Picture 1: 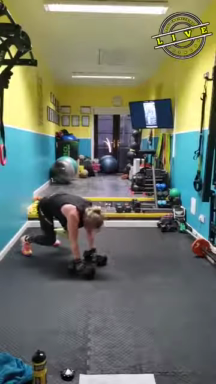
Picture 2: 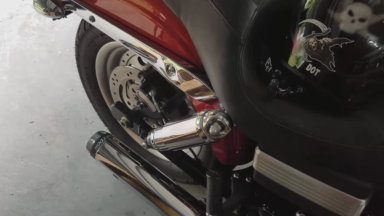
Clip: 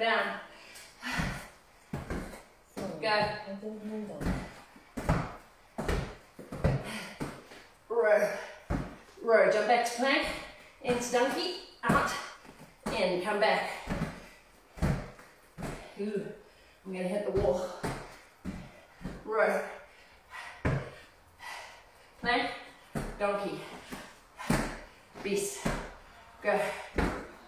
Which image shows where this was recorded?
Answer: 1